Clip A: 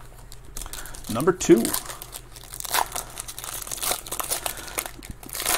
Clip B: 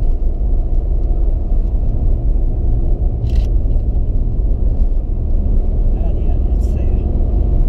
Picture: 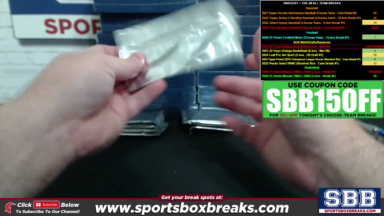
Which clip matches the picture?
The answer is A